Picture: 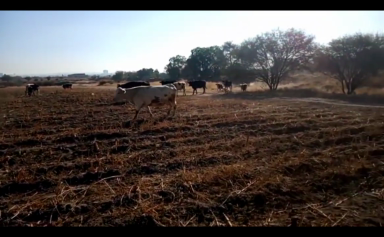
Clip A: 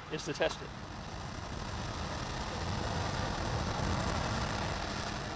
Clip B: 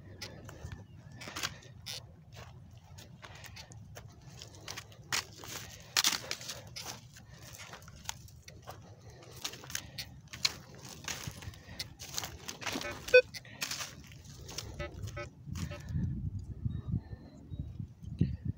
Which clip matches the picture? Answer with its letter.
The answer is B